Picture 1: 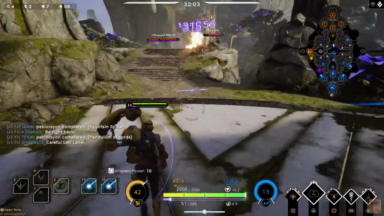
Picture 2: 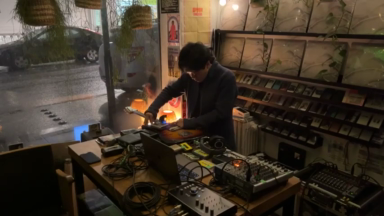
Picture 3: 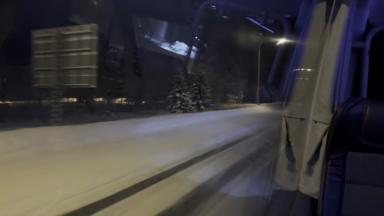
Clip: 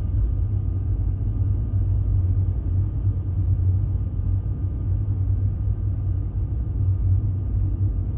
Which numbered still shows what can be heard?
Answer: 3